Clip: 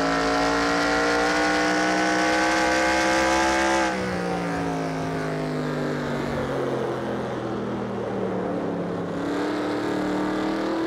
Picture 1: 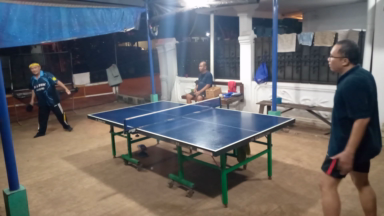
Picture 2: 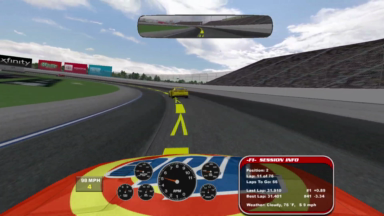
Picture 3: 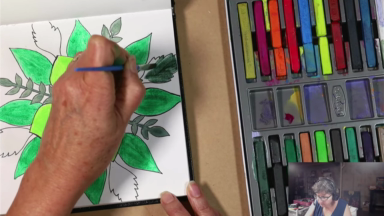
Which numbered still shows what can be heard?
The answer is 2